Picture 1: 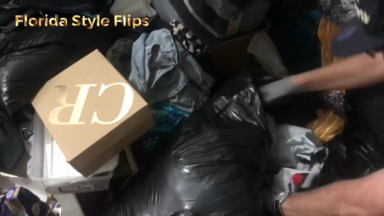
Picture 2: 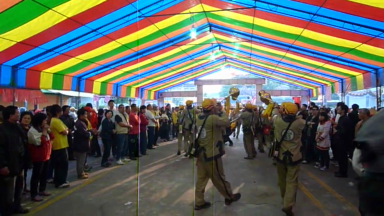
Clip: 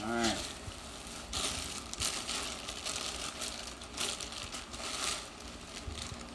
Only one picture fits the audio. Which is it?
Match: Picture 1